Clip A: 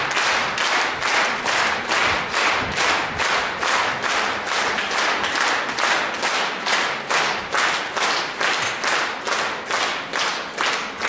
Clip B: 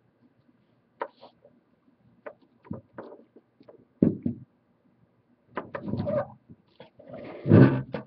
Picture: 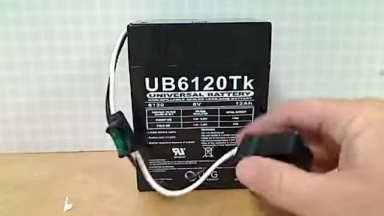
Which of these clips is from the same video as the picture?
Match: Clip B